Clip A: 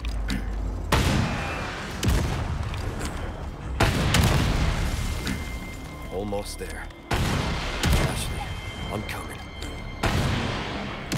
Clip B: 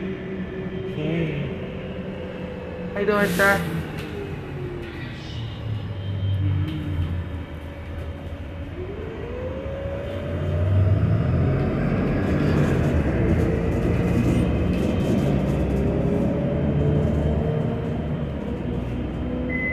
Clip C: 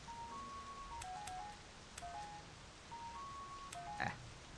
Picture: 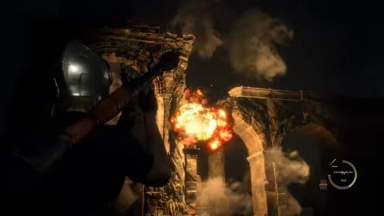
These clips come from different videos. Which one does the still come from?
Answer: A